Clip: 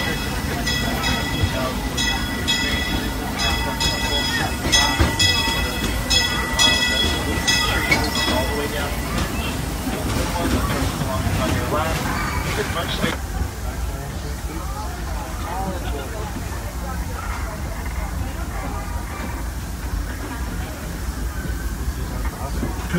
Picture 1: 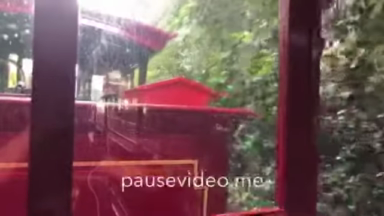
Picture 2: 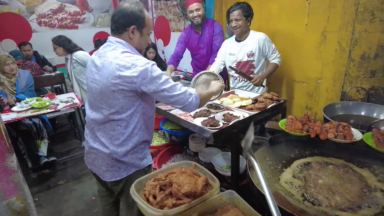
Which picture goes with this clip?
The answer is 1